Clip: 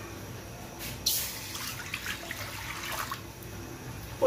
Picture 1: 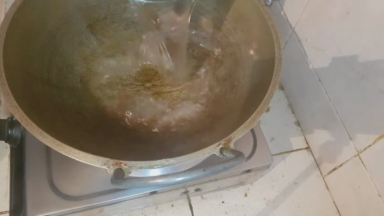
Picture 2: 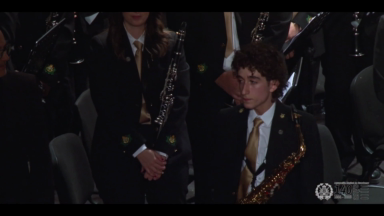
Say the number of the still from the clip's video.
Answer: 1